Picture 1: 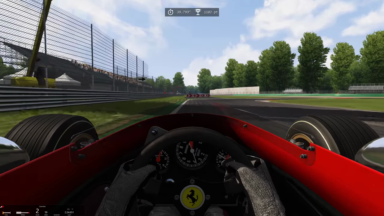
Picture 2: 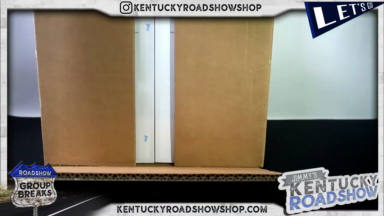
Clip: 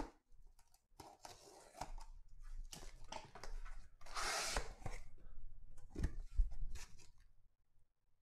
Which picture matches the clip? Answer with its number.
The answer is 2